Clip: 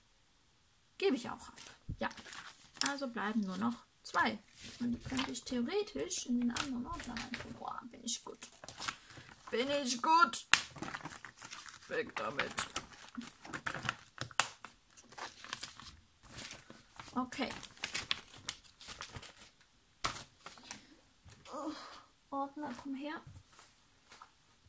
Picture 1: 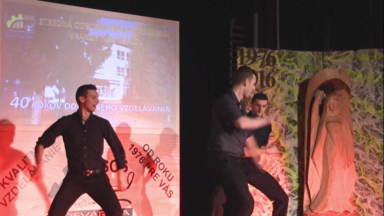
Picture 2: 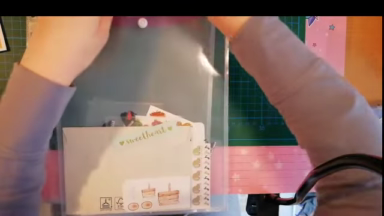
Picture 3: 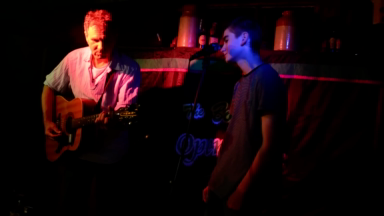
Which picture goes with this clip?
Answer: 2